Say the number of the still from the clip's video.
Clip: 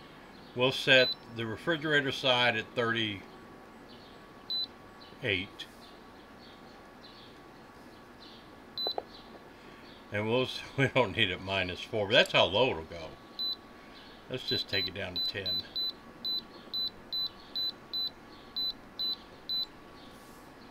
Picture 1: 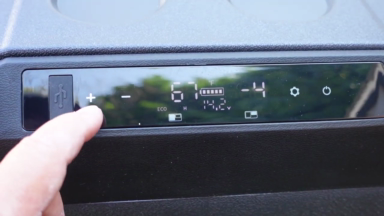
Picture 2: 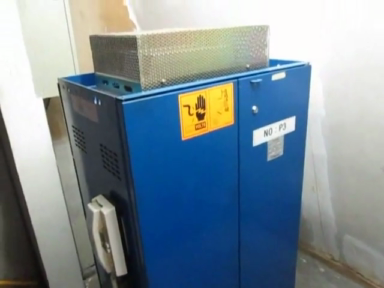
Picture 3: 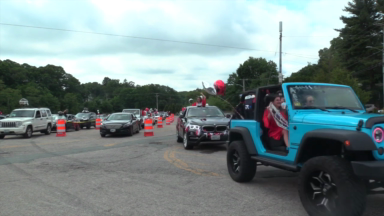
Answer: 1